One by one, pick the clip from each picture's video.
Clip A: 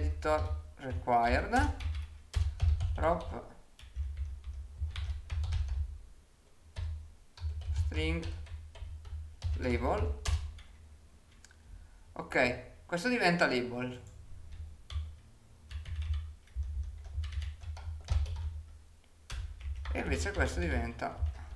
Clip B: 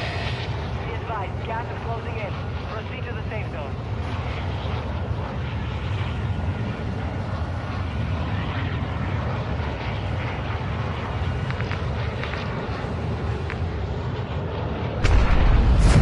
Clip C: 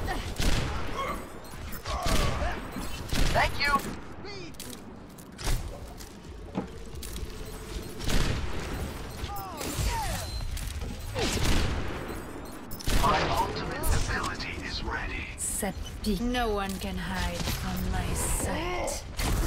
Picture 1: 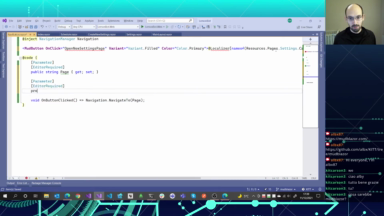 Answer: A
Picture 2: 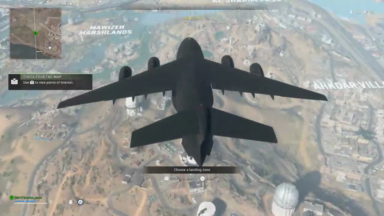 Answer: B